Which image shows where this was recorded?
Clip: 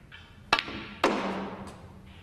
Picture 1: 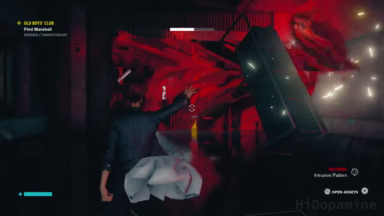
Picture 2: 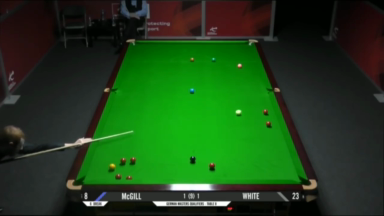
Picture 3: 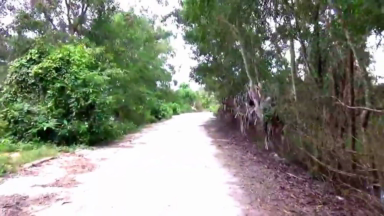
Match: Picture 2